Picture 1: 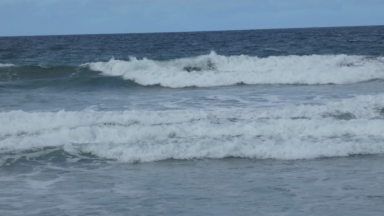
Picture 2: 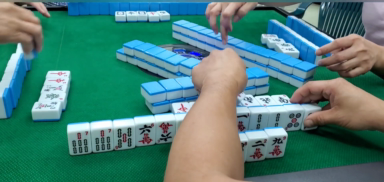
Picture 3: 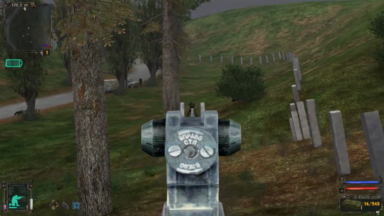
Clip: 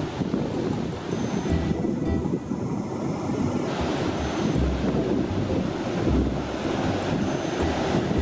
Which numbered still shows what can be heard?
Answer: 1